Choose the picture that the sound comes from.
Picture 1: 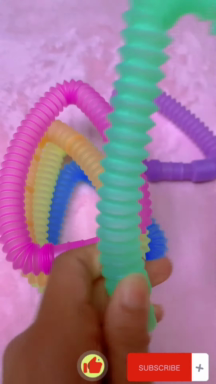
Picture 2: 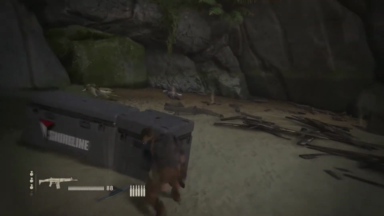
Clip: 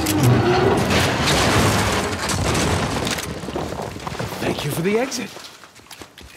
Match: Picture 2